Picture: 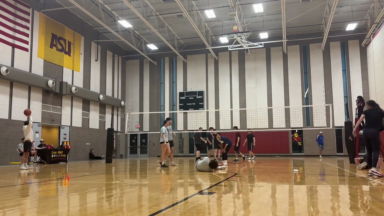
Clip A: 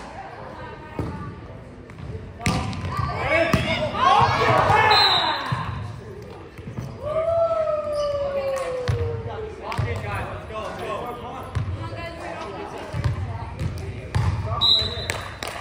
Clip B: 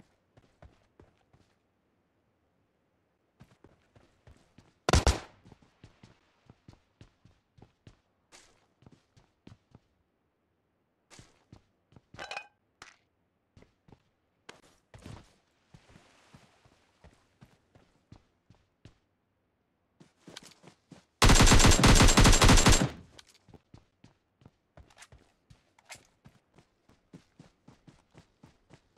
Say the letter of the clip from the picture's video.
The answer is A